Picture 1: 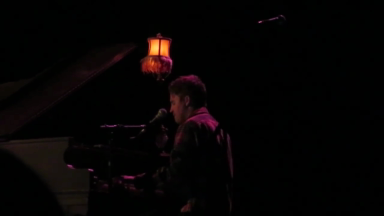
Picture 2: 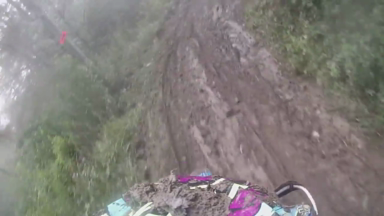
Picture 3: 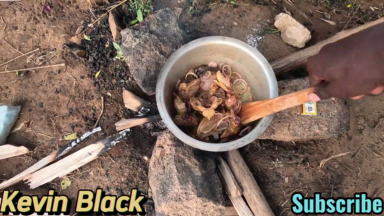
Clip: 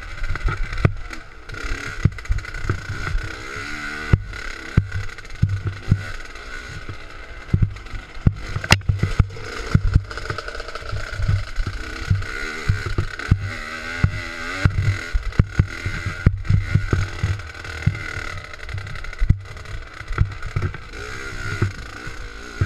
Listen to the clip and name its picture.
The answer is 2